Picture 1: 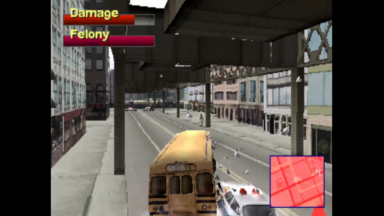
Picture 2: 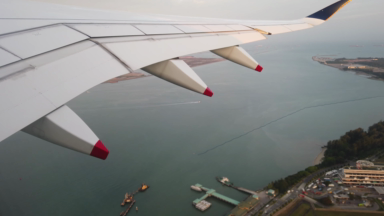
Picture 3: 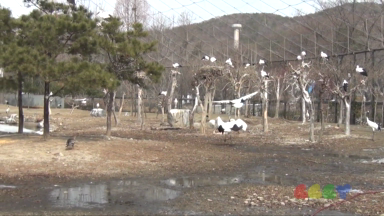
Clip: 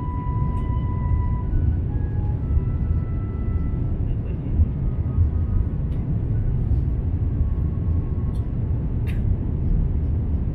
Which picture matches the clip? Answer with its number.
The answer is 2